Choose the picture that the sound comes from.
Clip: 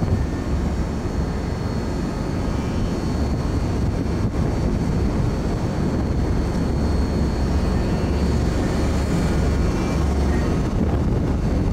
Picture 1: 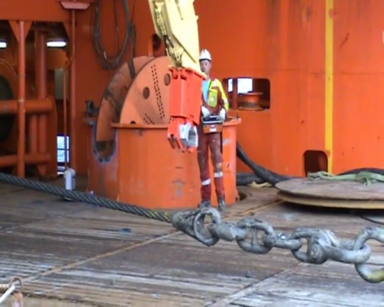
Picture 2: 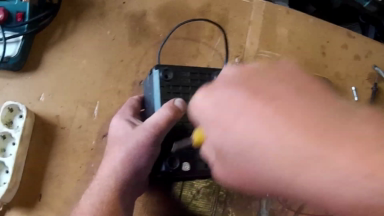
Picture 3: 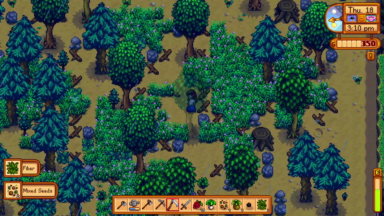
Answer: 1